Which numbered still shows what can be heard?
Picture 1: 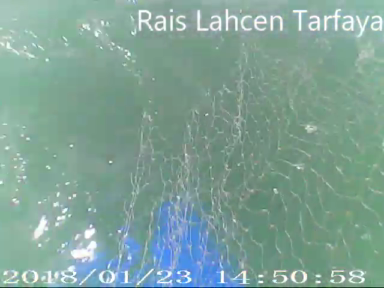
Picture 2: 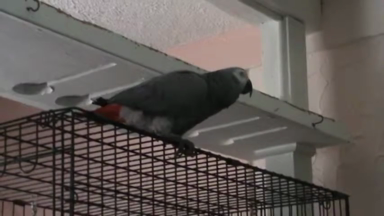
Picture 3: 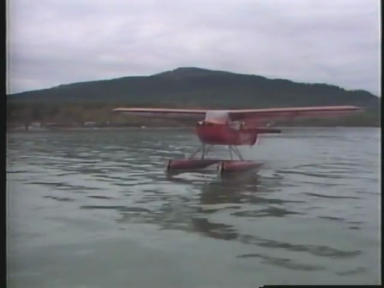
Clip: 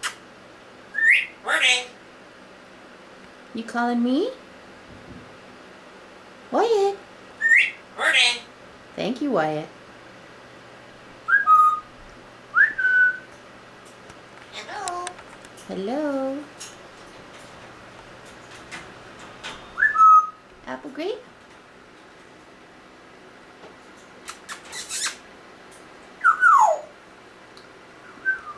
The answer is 2